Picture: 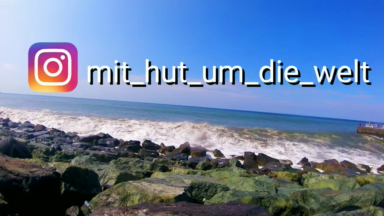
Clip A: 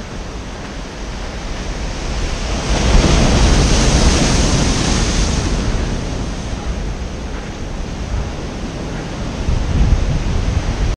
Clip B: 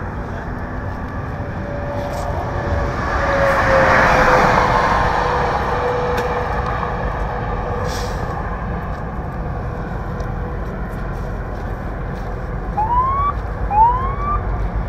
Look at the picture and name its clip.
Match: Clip A